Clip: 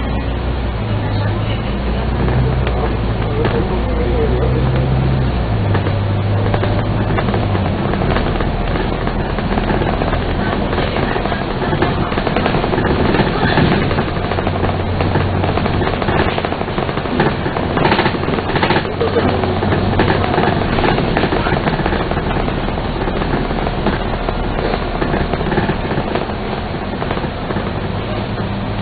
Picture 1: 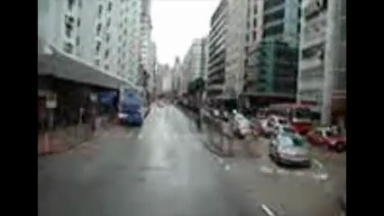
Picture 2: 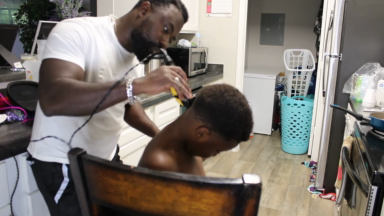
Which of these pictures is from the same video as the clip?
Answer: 1